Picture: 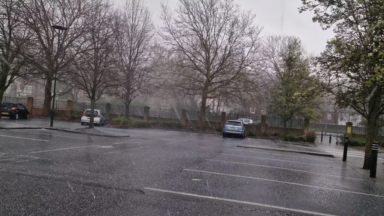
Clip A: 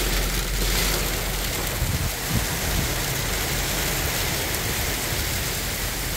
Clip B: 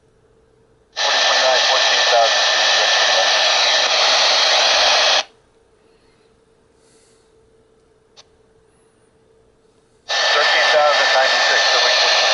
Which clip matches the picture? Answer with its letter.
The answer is A